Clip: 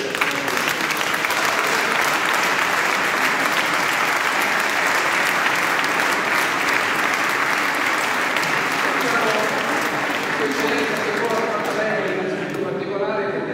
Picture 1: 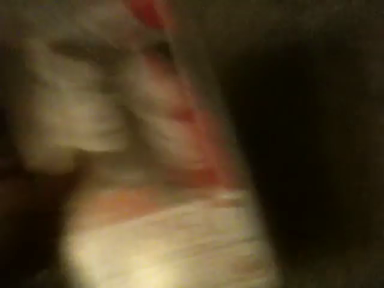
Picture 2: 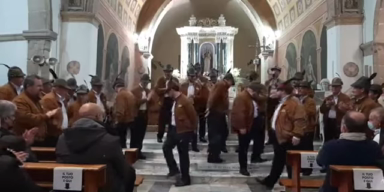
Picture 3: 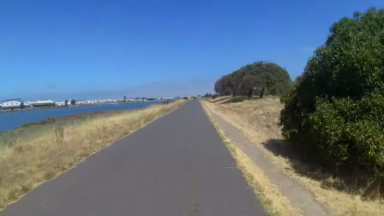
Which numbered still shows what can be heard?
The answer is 2